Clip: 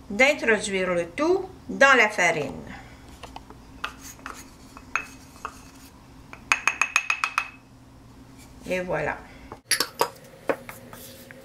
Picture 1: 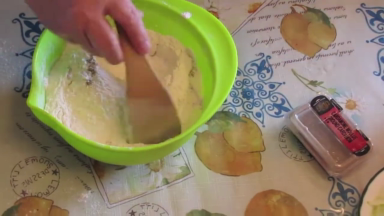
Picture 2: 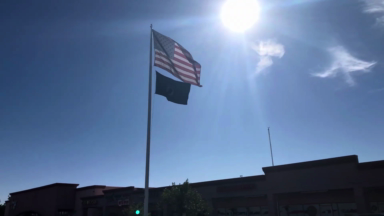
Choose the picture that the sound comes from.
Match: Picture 1